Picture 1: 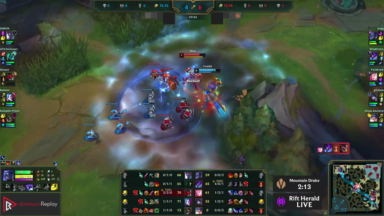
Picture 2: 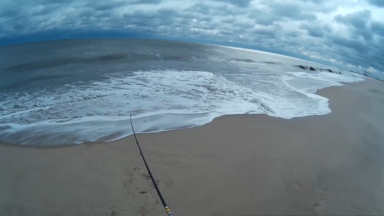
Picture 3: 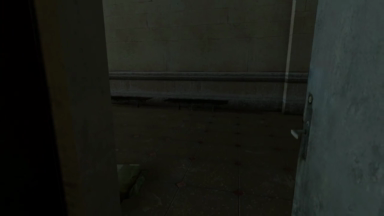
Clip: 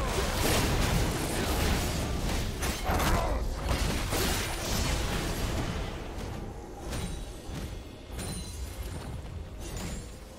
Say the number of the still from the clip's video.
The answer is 1